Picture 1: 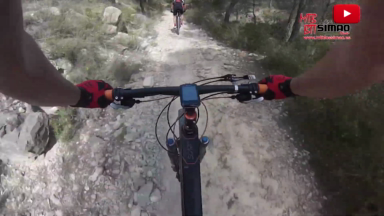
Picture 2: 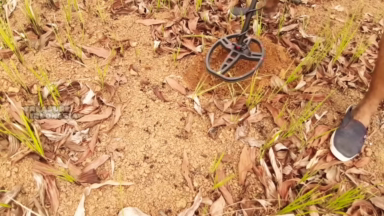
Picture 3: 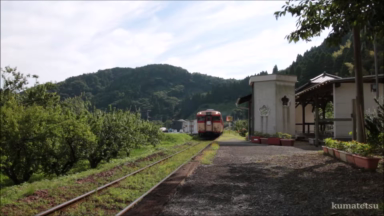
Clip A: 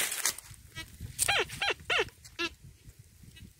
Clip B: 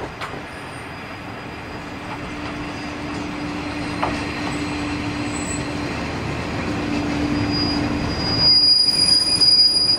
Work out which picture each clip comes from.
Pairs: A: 2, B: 3